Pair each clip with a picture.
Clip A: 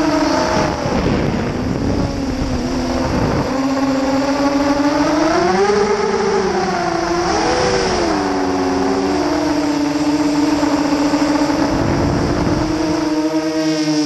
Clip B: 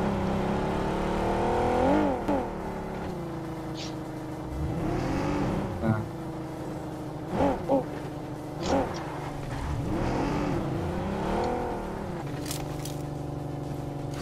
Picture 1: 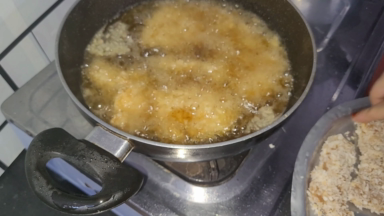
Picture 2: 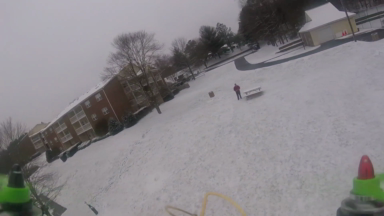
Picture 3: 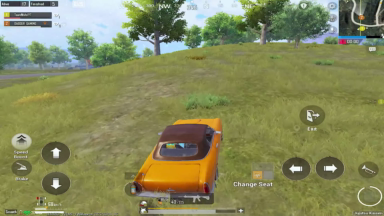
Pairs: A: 2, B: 3